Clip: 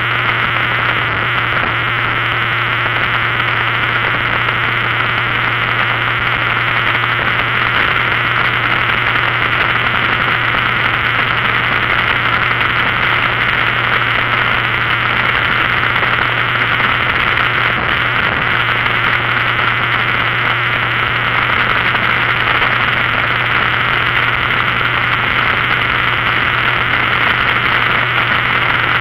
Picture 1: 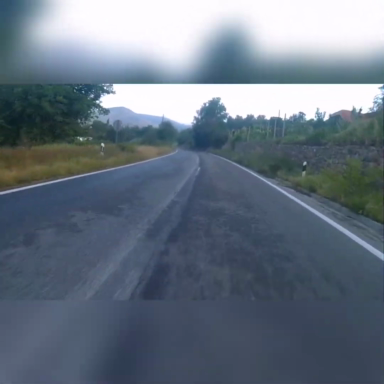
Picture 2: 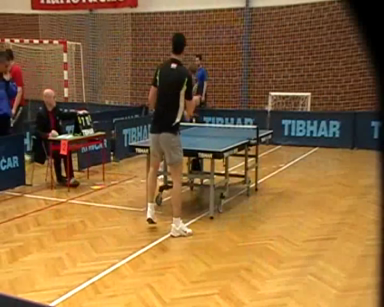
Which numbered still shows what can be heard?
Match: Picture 1